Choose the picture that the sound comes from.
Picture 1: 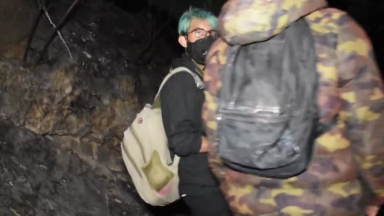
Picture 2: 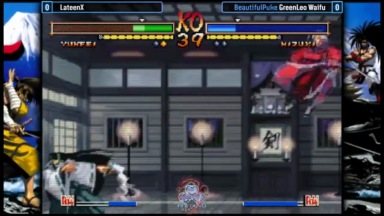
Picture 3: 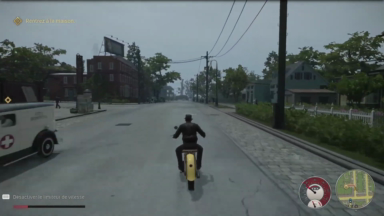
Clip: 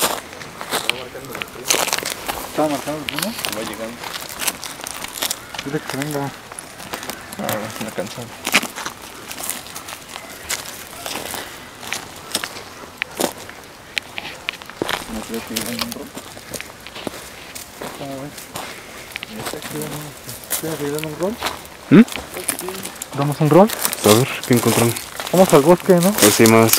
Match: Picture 1